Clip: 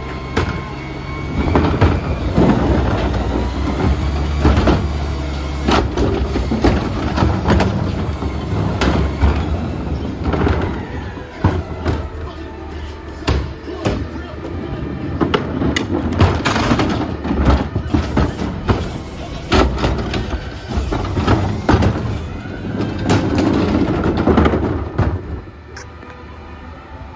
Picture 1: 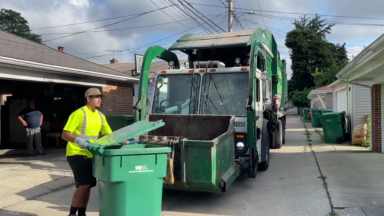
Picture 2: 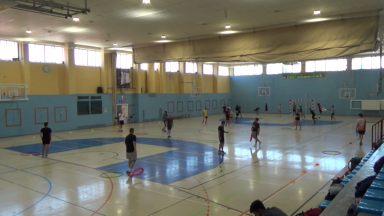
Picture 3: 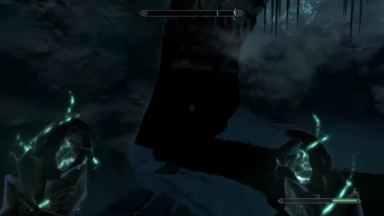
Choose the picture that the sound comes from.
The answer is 1